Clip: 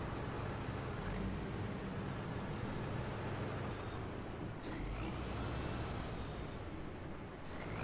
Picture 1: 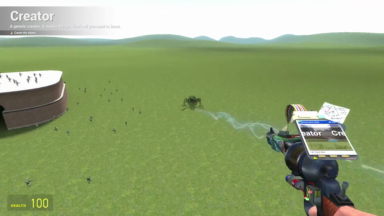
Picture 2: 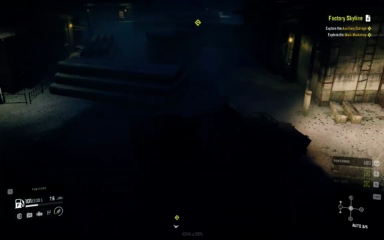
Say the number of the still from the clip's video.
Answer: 2